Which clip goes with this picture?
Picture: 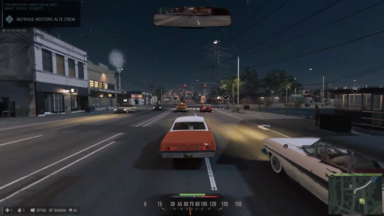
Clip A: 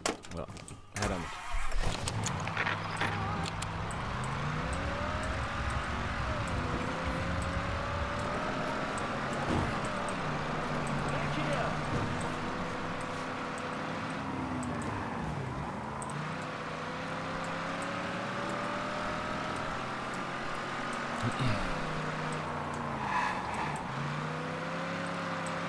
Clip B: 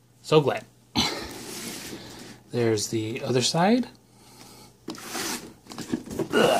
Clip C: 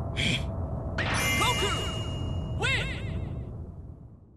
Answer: A